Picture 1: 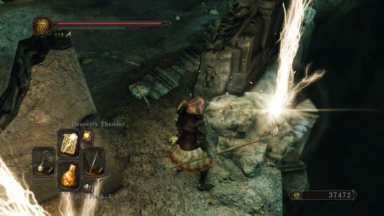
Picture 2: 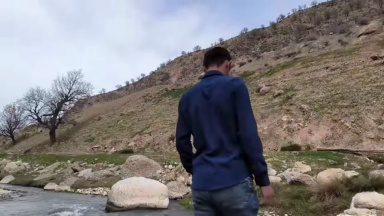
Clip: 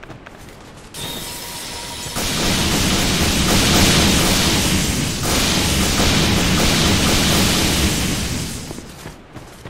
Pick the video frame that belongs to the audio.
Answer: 1